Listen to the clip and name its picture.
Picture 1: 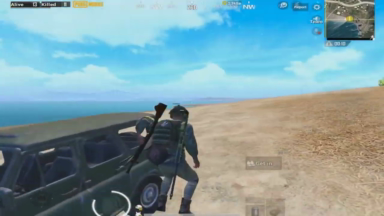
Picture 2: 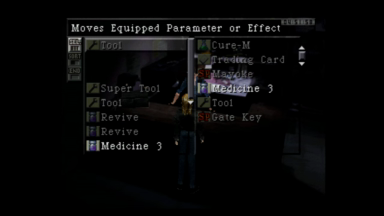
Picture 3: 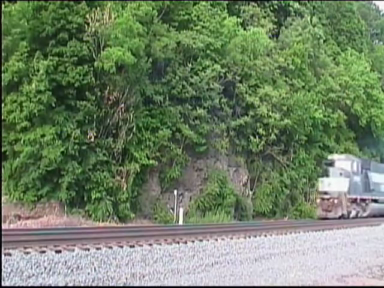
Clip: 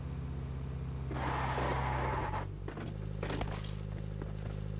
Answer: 1